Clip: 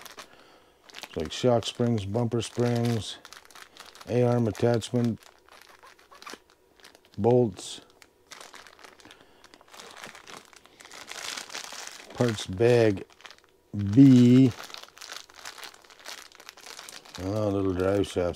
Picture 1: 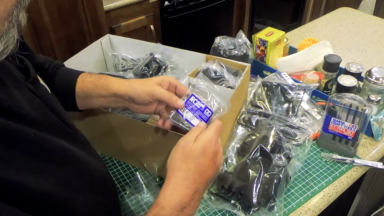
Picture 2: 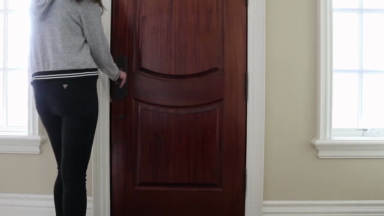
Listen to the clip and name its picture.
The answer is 1